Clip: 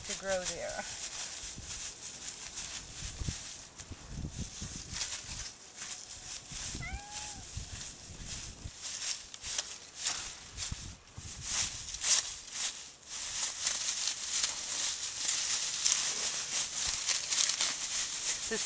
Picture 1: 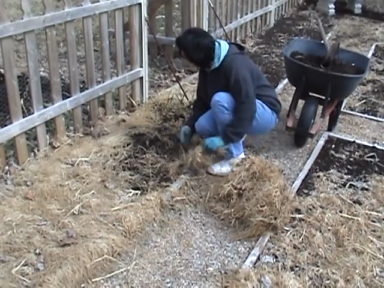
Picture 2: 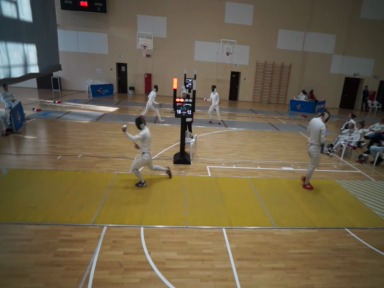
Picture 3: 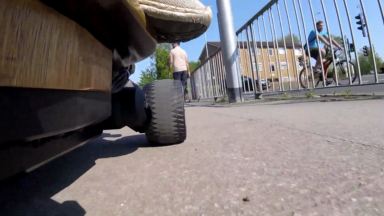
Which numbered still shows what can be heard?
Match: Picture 1